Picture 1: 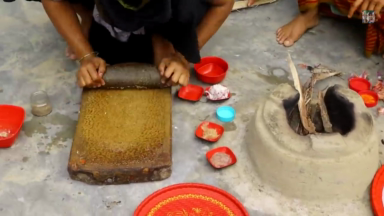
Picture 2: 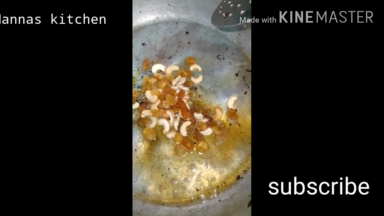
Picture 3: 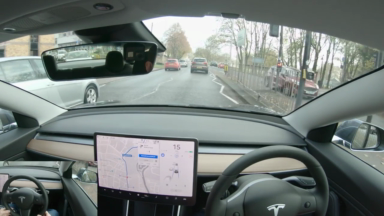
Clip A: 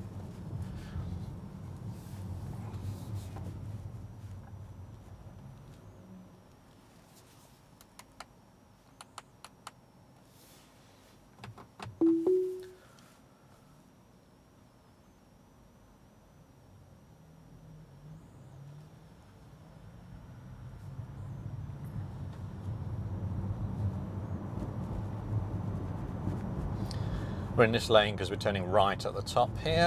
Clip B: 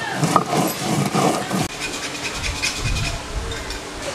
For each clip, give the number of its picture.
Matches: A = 3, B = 1